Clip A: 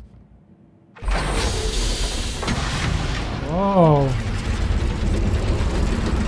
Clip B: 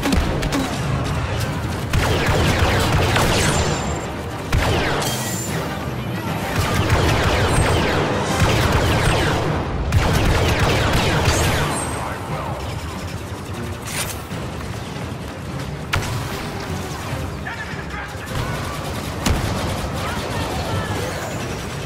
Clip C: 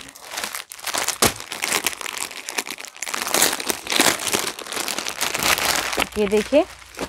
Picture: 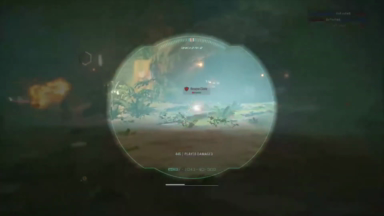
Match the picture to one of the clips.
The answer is B